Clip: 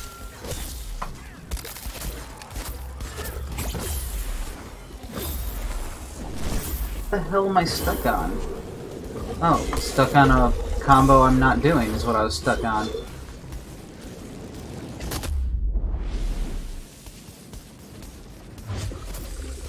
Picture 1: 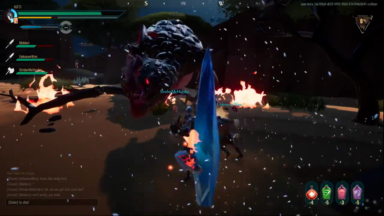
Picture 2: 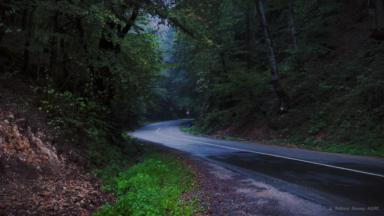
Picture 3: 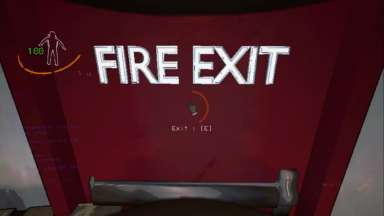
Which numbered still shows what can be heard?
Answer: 1